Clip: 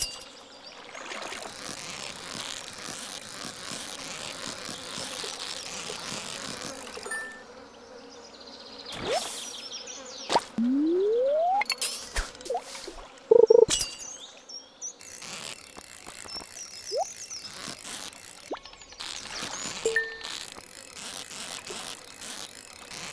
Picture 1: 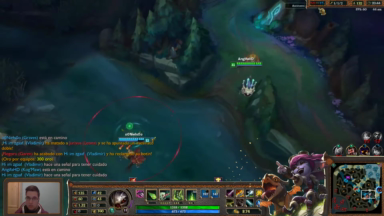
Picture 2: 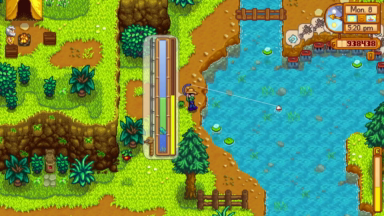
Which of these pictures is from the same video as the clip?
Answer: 2